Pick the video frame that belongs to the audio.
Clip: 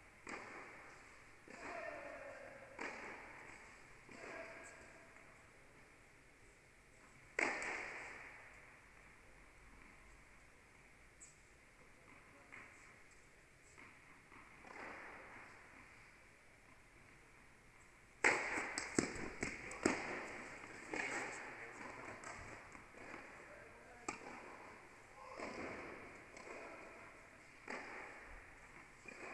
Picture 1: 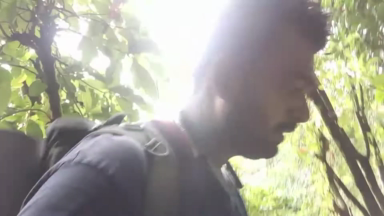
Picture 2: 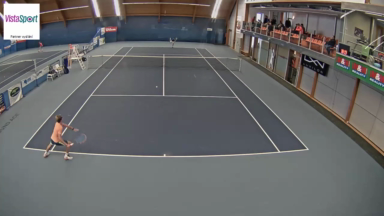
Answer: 2